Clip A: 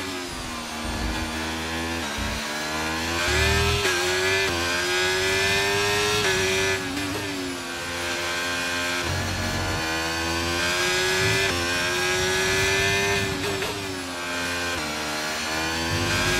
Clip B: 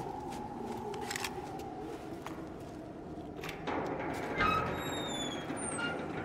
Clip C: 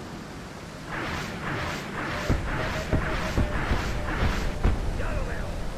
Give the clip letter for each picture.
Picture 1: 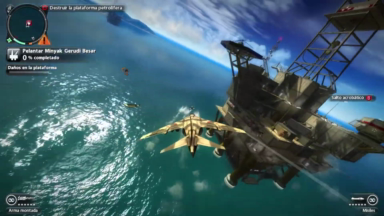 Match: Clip C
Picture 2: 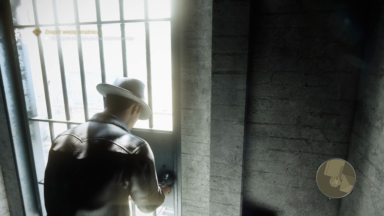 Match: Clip B